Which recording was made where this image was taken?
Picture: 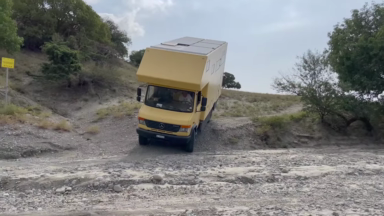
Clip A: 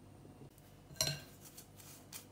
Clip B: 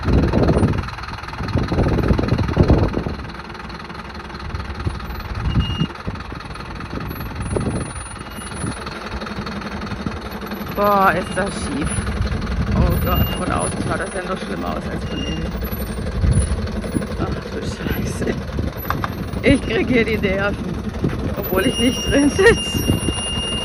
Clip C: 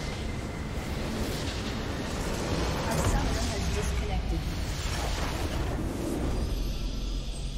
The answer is B